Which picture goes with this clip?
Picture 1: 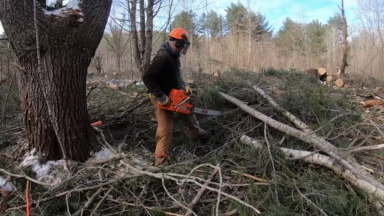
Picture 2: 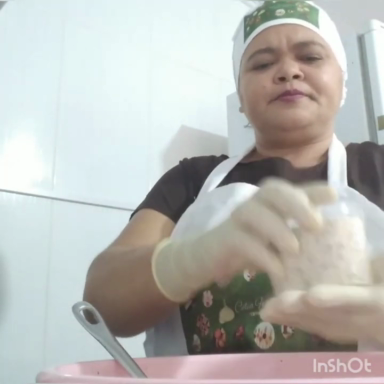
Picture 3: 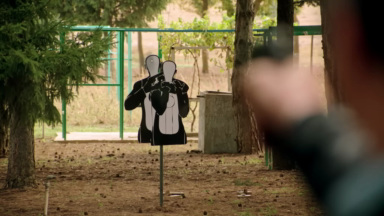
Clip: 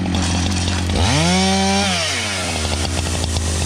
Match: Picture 1